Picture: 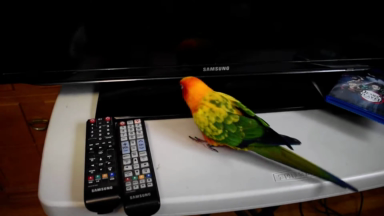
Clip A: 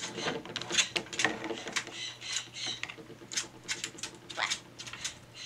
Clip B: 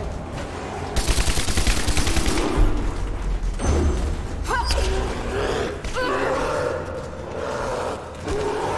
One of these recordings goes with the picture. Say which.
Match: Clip A